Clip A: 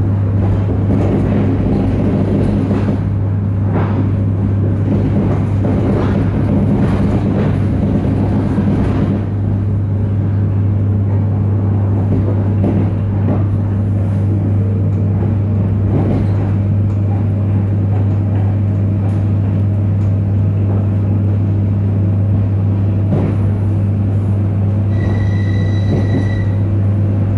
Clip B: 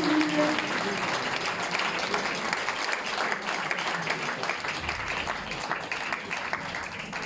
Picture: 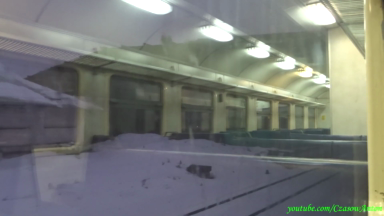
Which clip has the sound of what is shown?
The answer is A